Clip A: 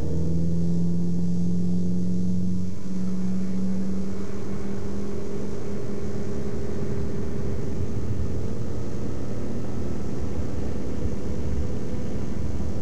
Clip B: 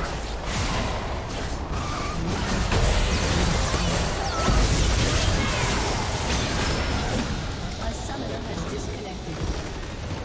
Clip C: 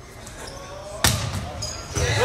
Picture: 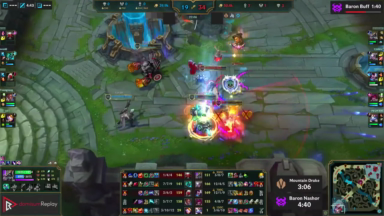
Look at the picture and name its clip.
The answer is B